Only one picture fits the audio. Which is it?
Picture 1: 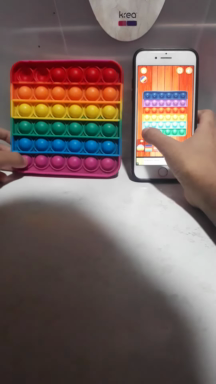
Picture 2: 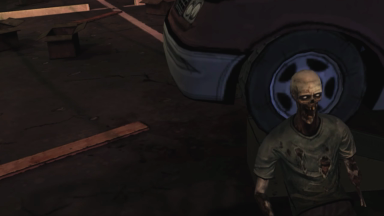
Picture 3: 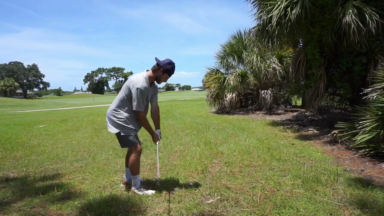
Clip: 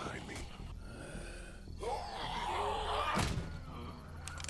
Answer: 2